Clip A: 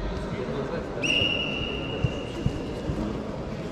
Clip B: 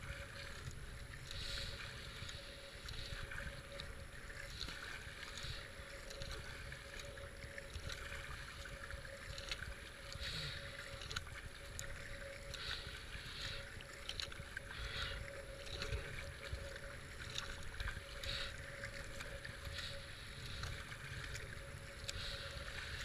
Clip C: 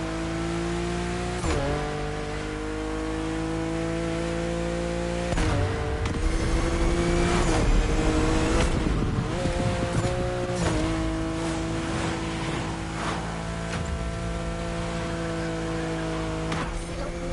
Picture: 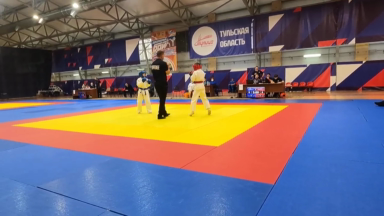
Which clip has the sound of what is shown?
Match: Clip A